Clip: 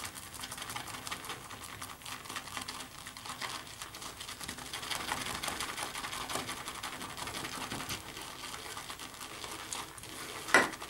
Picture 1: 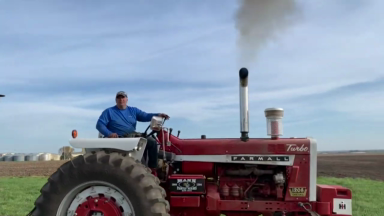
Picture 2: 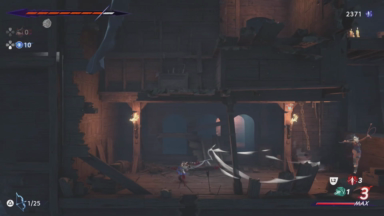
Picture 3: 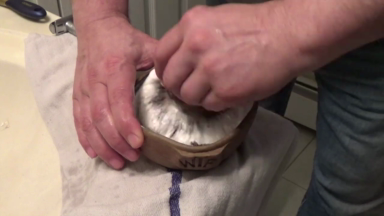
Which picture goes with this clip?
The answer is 3